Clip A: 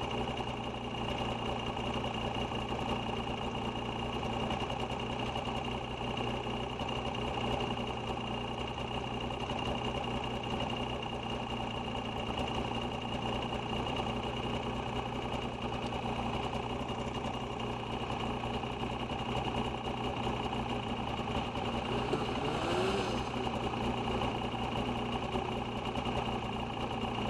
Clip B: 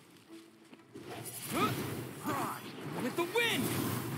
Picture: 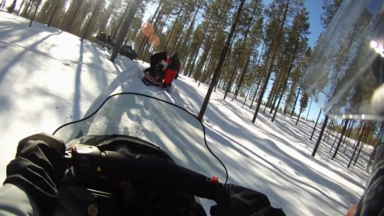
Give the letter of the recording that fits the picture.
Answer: A